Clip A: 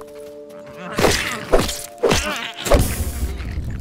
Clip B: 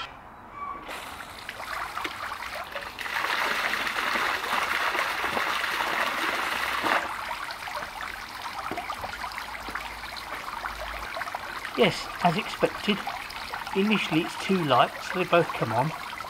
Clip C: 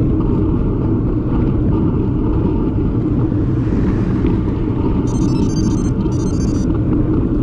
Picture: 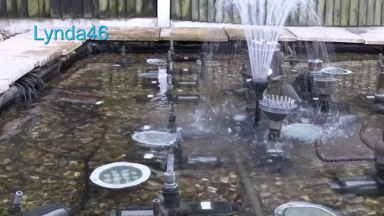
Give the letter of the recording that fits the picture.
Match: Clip B